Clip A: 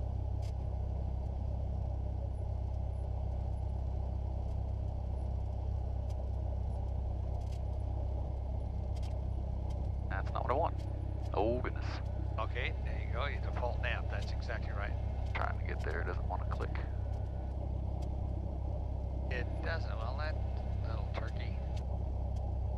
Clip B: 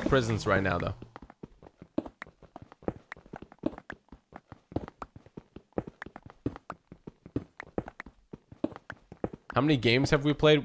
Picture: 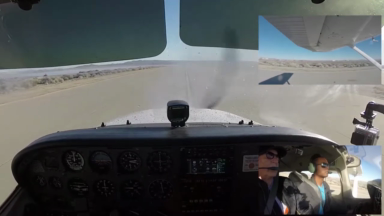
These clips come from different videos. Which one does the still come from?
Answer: A